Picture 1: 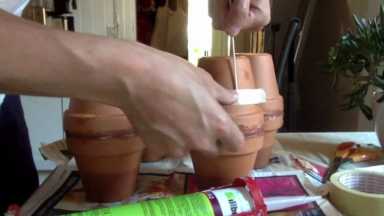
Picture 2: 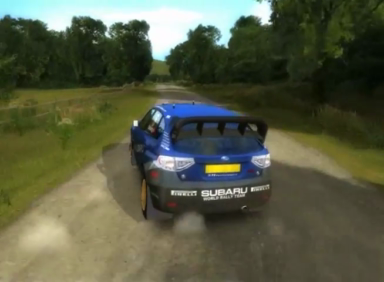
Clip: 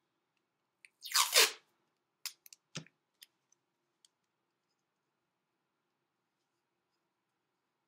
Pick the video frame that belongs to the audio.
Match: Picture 1